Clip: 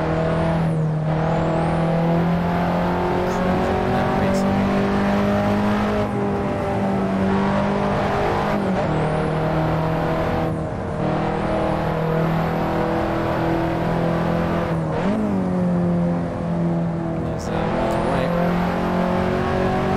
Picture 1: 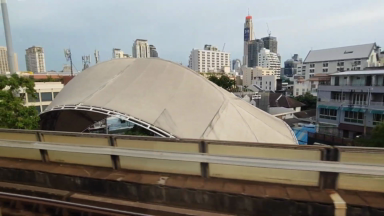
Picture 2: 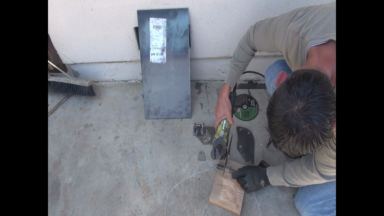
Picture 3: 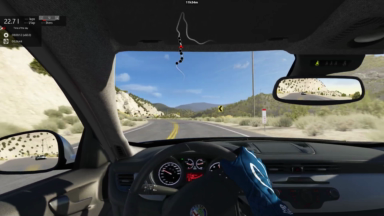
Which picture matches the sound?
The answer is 3